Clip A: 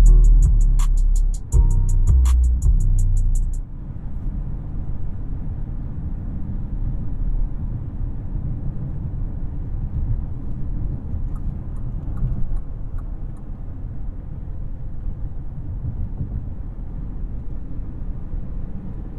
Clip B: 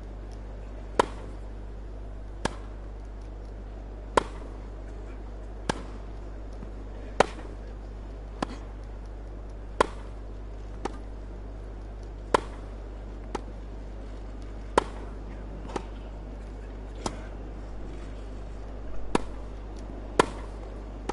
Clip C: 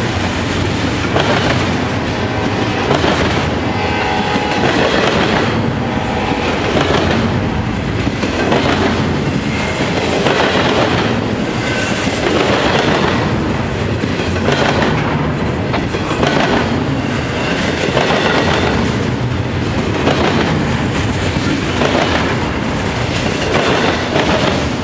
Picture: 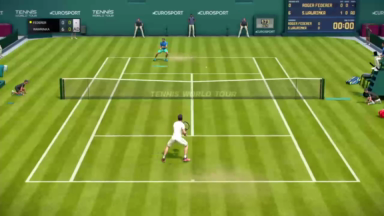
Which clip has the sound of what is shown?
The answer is B